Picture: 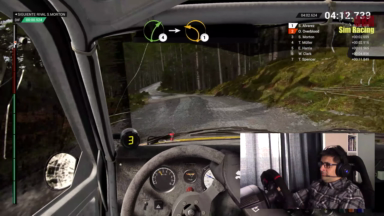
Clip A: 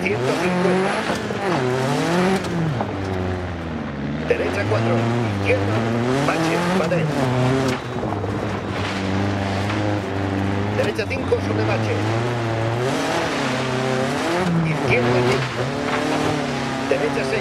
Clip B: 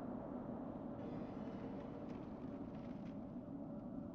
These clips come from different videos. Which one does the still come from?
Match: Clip A